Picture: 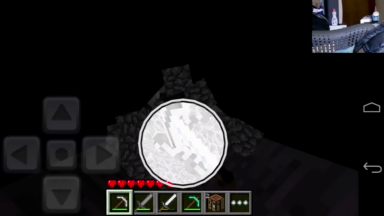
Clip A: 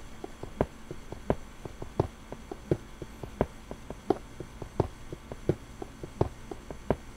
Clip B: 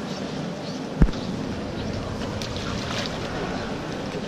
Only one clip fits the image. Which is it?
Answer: A